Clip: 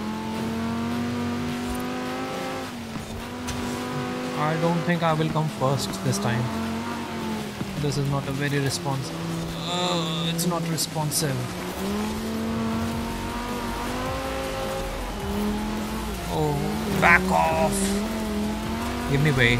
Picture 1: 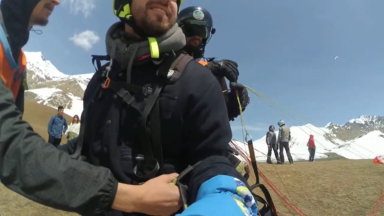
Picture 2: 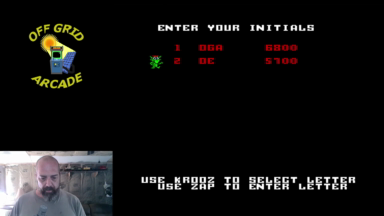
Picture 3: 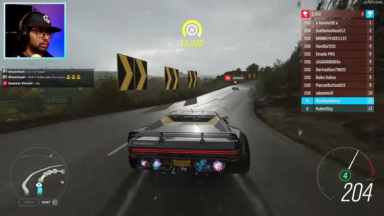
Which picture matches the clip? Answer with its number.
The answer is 3